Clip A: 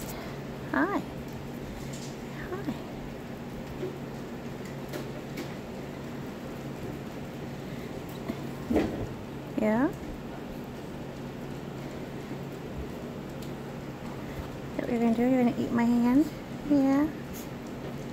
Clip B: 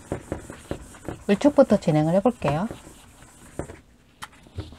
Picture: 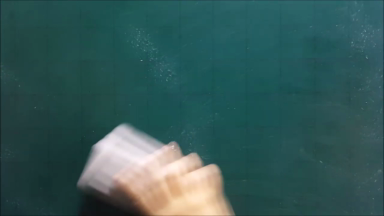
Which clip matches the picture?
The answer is B